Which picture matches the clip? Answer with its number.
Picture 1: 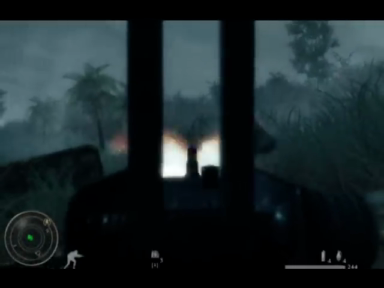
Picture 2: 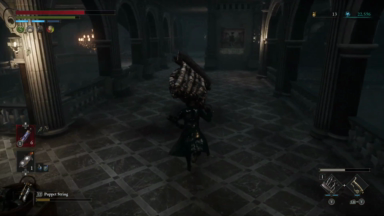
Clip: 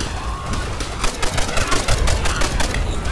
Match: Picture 1